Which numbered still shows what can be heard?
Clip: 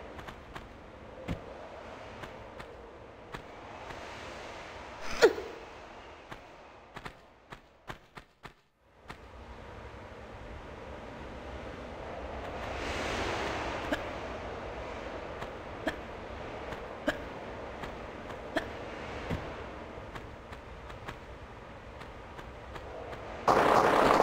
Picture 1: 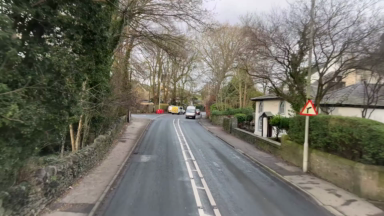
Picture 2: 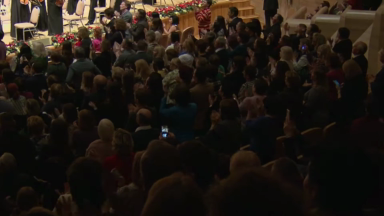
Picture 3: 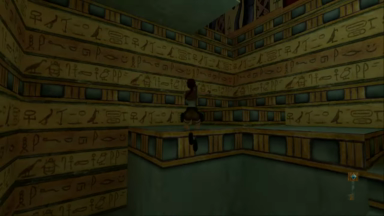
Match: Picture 3